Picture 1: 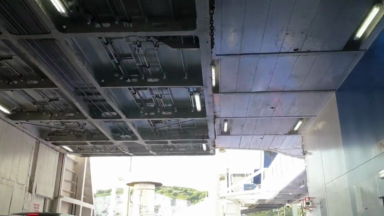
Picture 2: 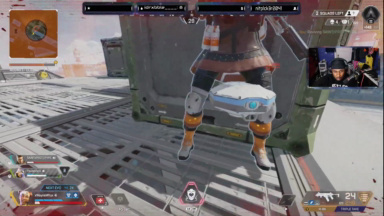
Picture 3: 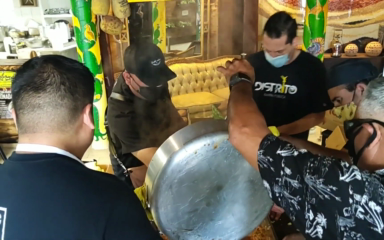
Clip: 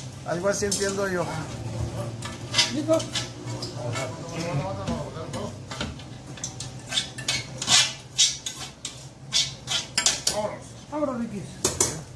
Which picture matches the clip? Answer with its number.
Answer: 3